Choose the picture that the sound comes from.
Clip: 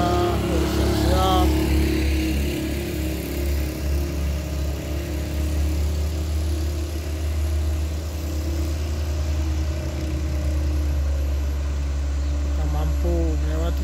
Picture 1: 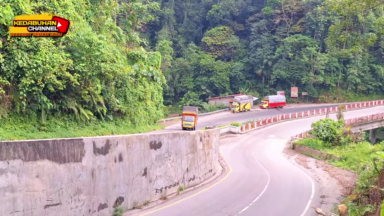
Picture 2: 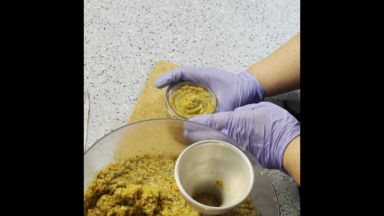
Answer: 1